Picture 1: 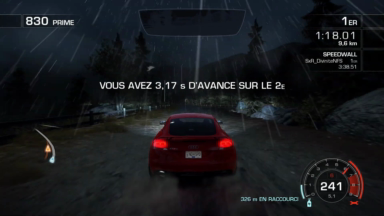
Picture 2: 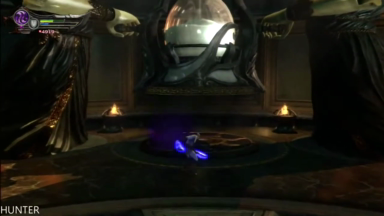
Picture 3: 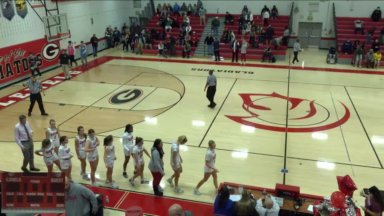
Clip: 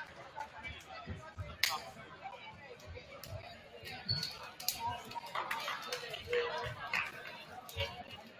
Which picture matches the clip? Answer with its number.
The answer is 3